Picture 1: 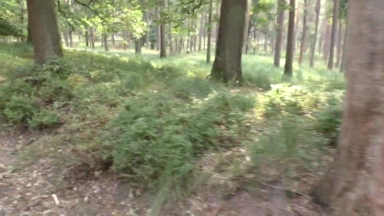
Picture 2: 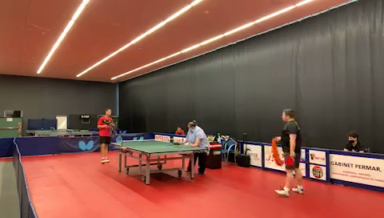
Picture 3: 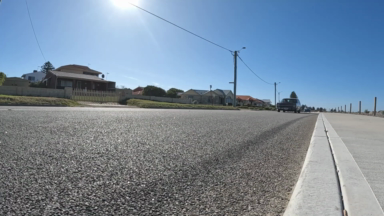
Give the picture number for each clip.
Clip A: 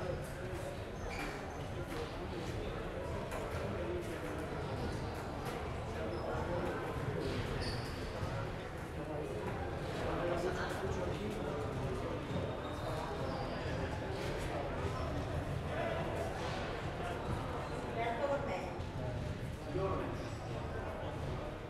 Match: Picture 2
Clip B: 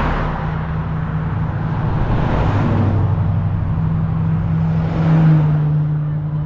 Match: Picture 3